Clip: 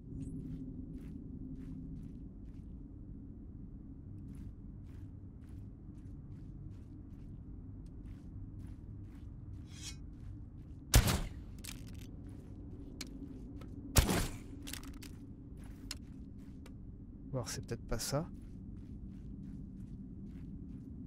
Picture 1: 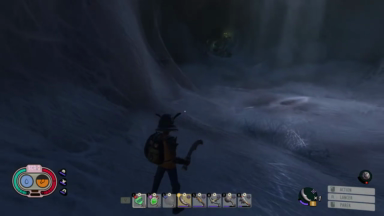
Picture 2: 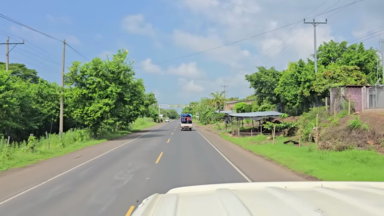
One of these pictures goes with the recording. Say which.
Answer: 1